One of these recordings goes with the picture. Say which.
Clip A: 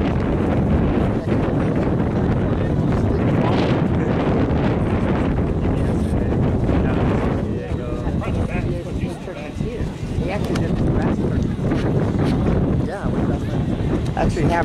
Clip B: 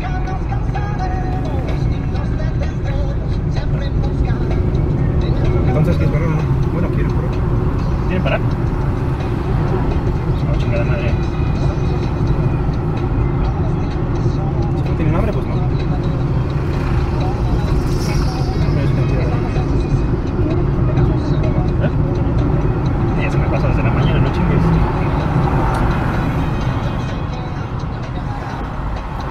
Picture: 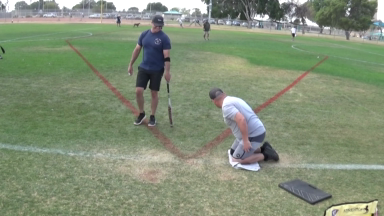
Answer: A